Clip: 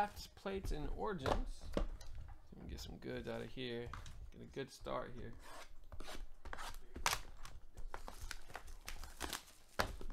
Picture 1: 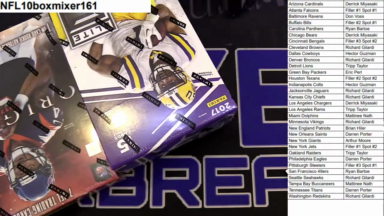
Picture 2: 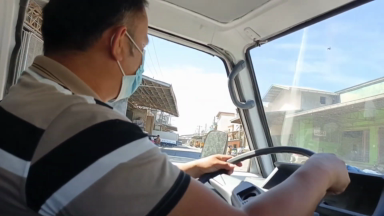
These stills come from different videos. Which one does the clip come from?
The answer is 1